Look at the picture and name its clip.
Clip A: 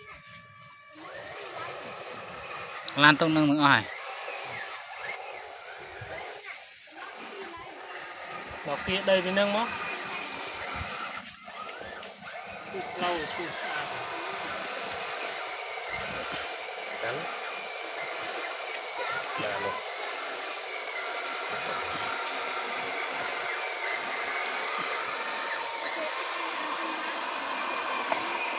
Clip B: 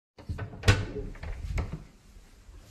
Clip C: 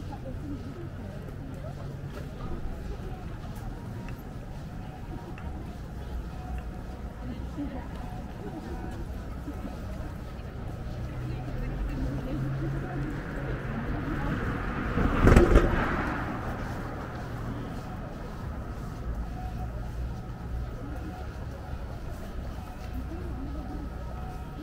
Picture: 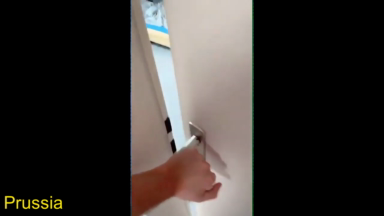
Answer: B